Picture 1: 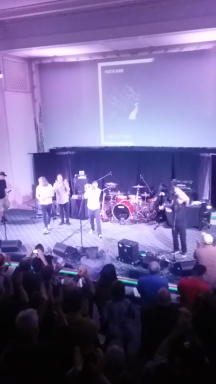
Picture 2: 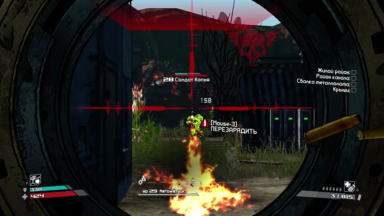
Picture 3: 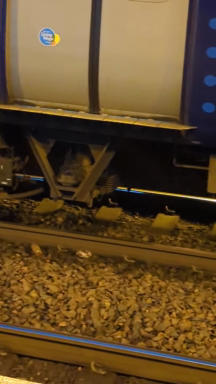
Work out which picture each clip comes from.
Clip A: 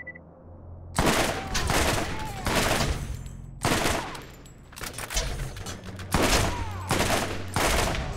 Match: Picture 2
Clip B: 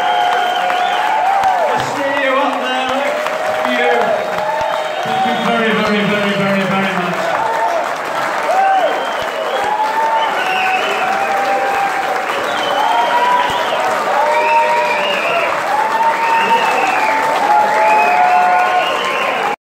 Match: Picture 1